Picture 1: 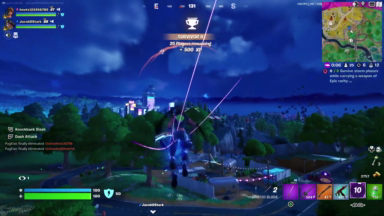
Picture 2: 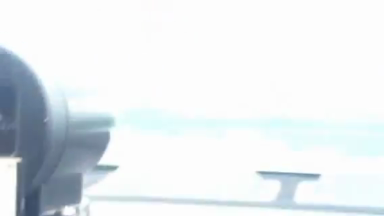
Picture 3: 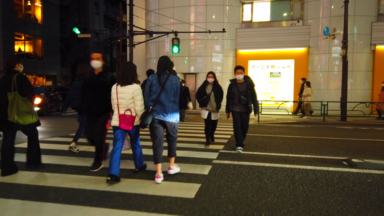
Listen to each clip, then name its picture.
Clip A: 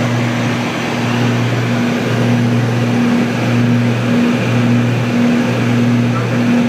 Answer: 2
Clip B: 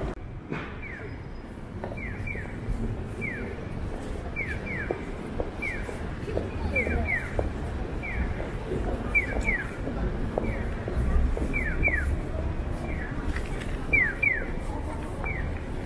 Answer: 3